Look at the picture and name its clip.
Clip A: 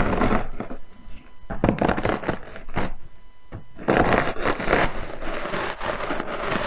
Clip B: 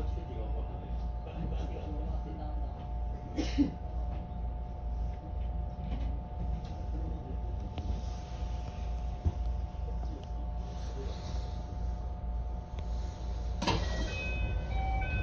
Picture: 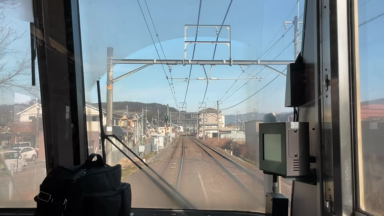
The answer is B